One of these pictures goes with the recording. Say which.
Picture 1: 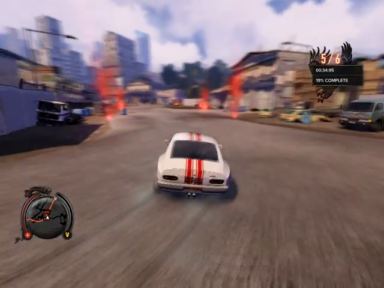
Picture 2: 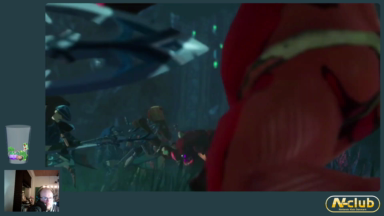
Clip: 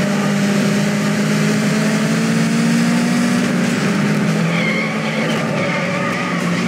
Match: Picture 1